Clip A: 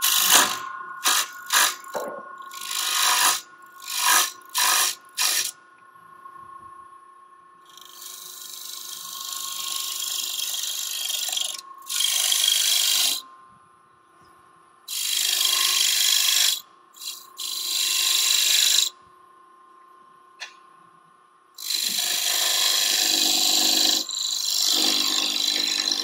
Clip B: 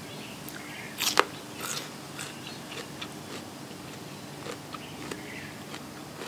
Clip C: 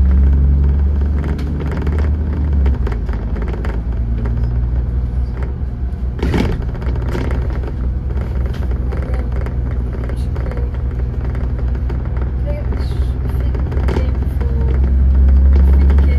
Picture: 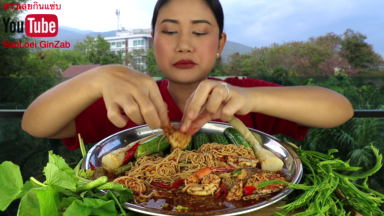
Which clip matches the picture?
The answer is B